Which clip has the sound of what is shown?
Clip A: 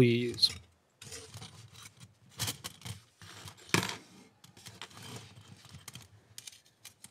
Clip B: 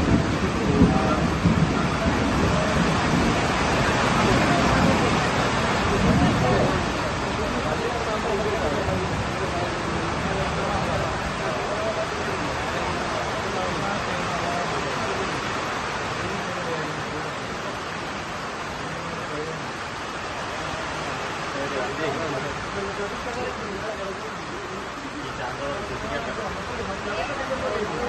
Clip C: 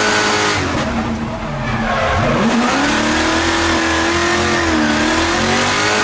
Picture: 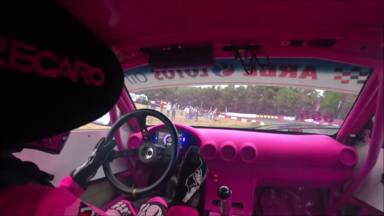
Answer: C